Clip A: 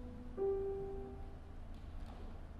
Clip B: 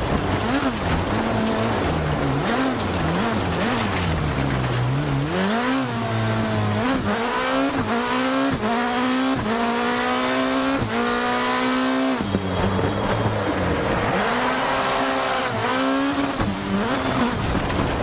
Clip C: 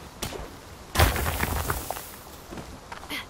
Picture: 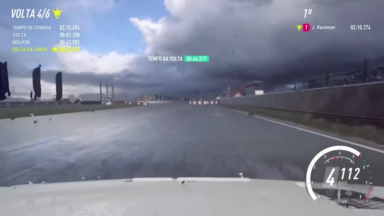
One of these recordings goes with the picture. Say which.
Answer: B